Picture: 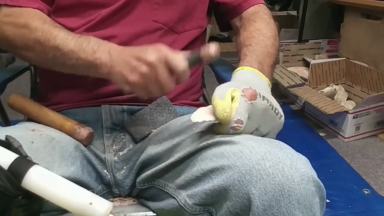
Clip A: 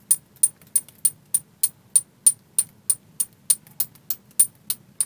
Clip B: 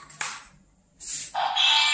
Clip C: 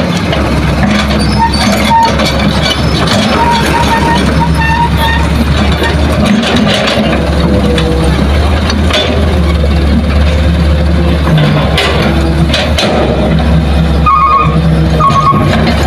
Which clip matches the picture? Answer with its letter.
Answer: A